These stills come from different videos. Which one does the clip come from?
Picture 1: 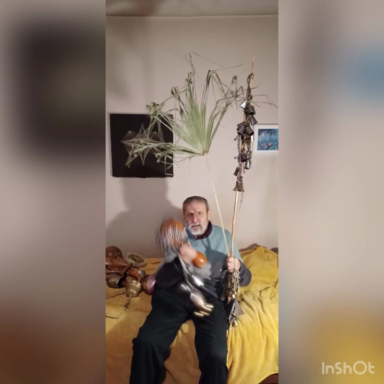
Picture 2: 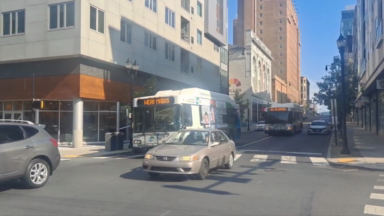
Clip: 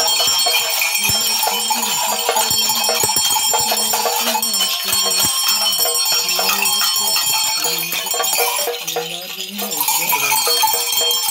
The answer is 1